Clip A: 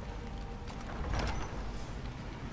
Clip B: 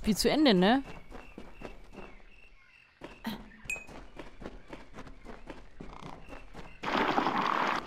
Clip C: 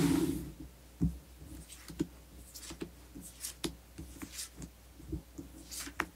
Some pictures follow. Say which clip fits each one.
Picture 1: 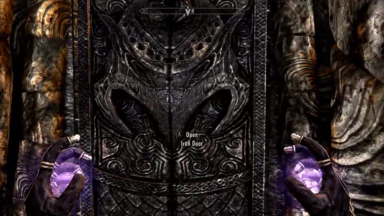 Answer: A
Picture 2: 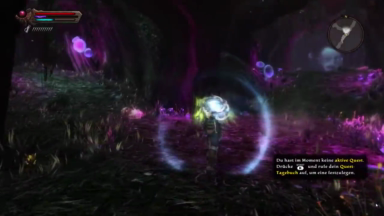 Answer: B